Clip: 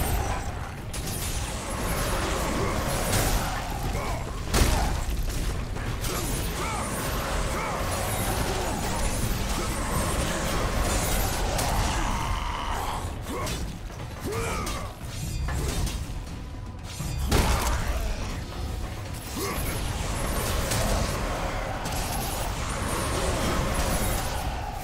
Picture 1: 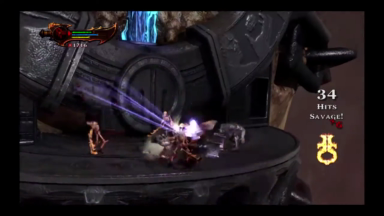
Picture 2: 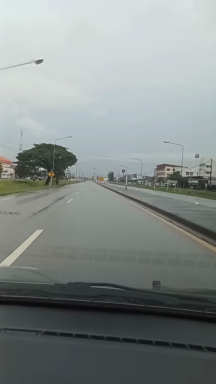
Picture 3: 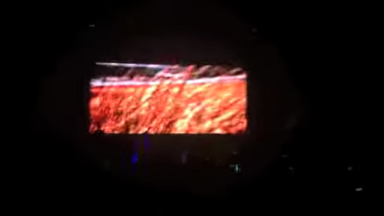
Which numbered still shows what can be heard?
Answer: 1